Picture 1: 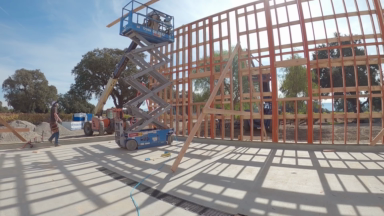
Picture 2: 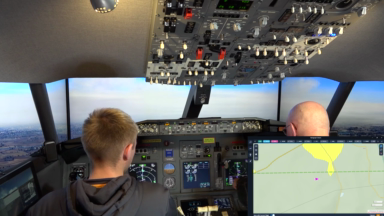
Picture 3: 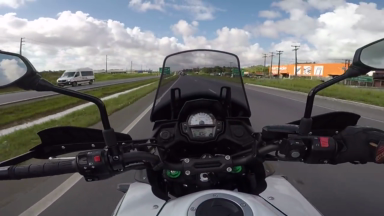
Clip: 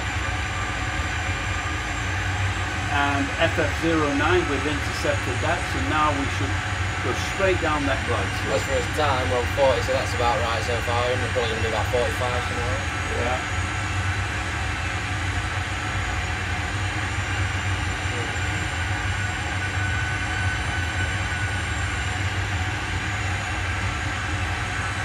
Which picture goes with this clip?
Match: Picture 2